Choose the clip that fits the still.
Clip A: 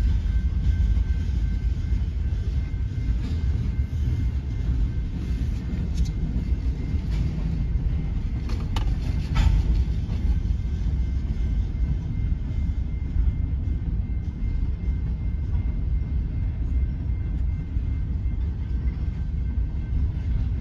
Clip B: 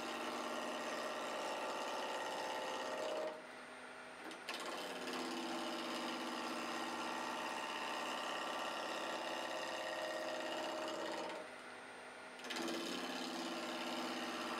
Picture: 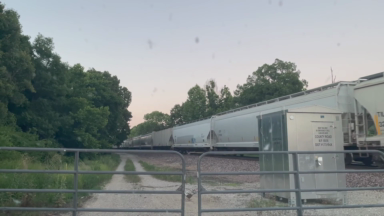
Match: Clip A